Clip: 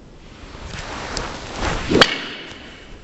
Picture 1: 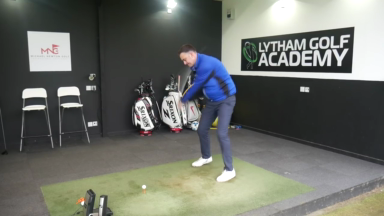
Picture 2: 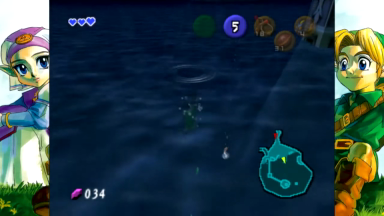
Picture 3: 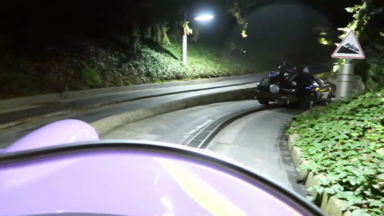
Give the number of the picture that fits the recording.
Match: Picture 1